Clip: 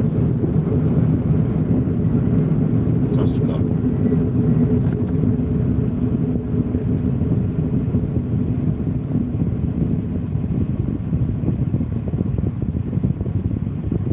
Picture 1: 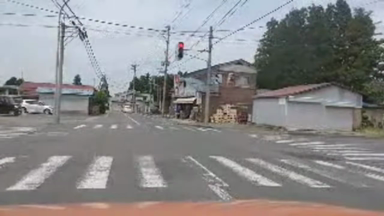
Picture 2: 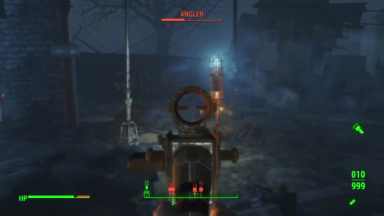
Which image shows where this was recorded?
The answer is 1